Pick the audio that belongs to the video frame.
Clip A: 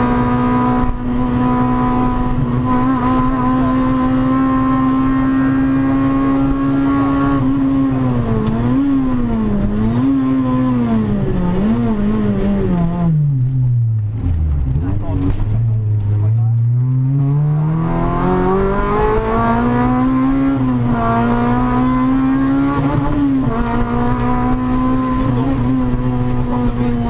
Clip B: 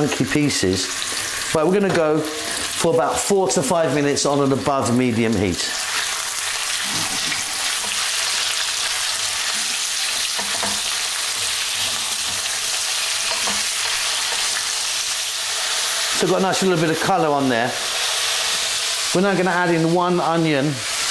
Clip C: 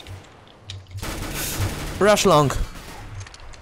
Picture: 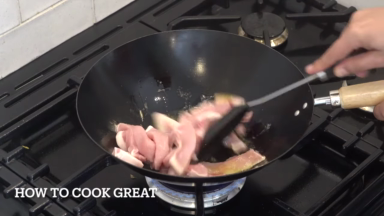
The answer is B